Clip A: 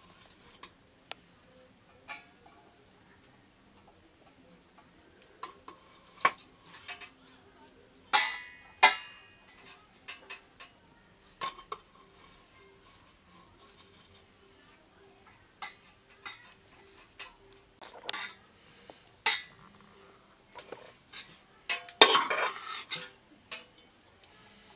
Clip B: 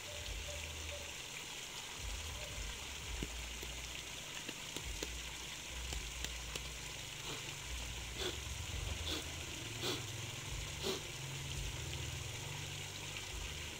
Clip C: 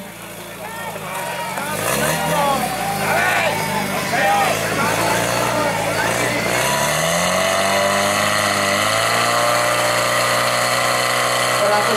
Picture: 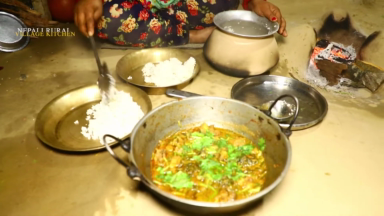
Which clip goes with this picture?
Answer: A